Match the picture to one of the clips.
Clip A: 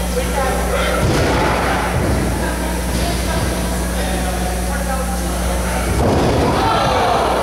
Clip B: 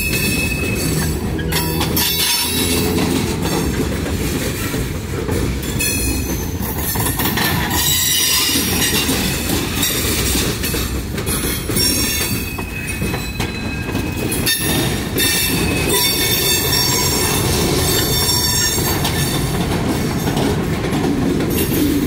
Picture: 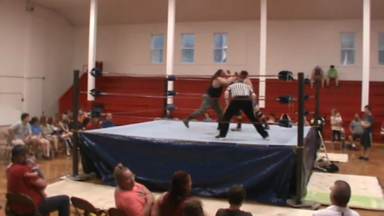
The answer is A